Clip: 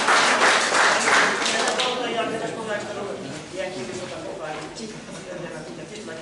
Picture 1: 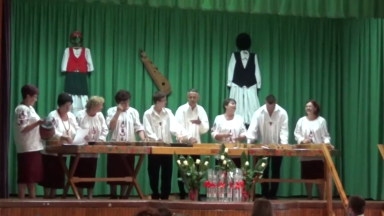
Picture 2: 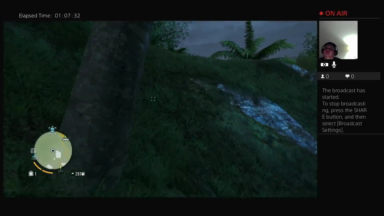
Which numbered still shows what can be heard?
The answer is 1